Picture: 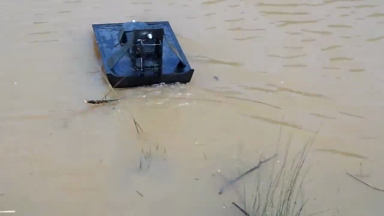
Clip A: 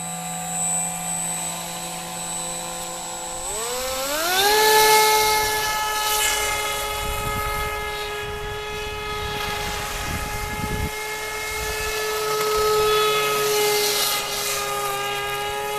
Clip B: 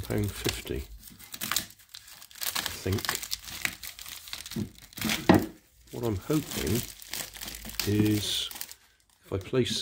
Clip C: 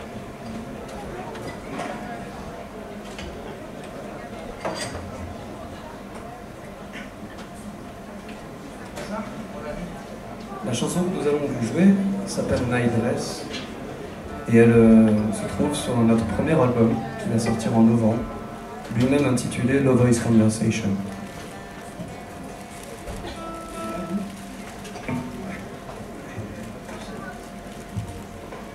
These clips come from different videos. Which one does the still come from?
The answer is A